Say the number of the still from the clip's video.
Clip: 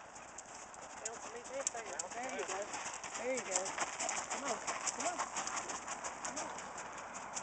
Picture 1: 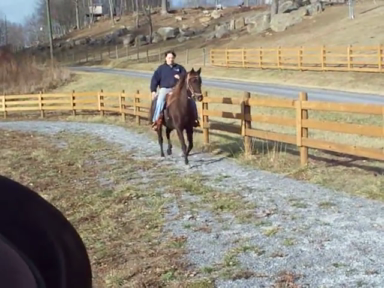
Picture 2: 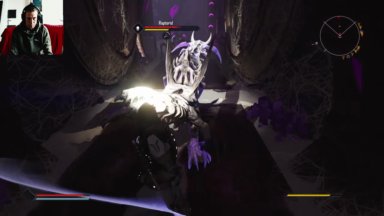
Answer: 1